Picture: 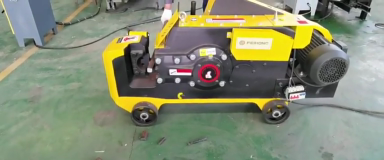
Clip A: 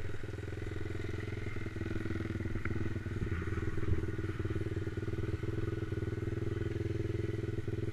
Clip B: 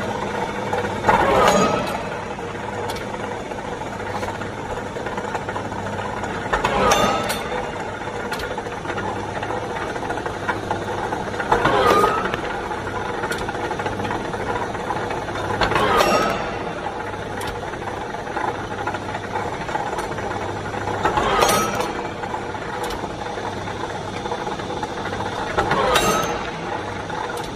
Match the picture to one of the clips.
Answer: B